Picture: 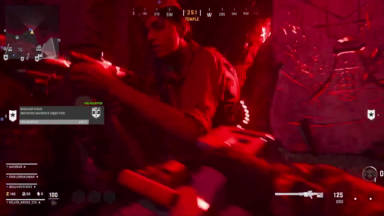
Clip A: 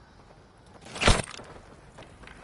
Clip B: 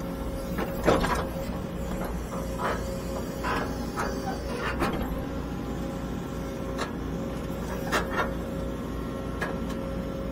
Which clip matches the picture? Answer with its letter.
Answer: A